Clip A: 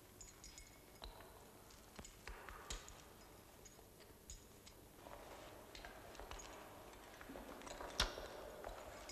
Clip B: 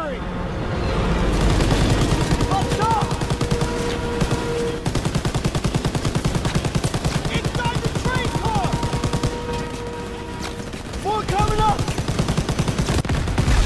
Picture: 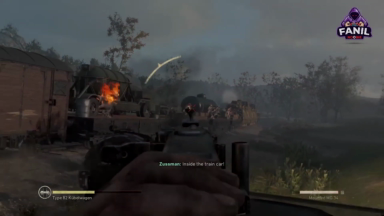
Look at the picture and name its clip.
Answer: B